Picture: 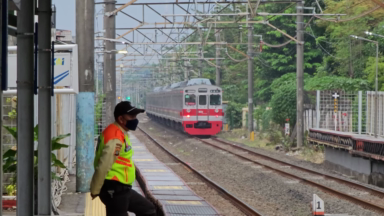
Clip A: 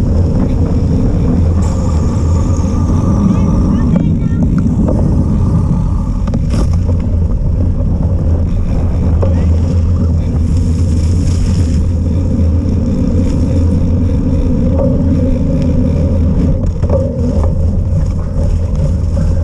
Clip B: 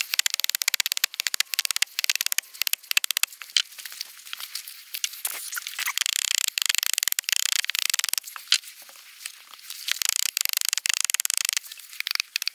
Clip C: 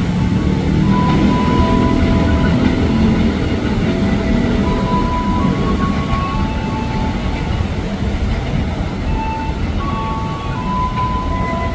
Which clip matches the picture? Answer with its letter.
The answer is C